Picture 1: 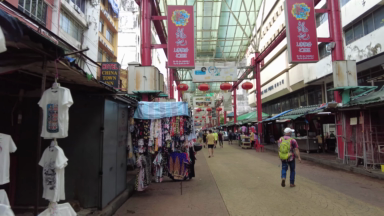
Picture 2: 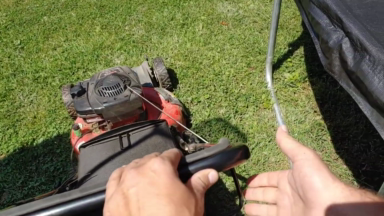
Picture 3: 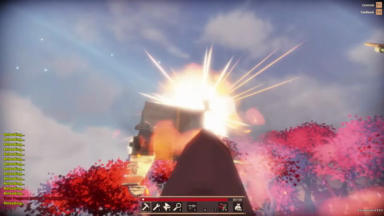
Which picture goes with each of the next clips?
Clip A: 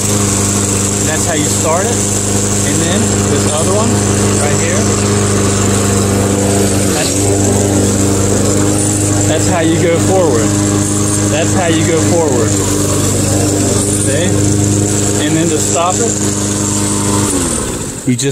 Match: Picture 2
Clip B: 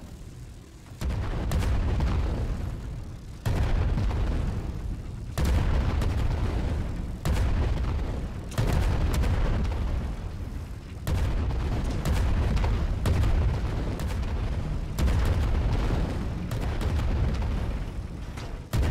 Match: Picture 3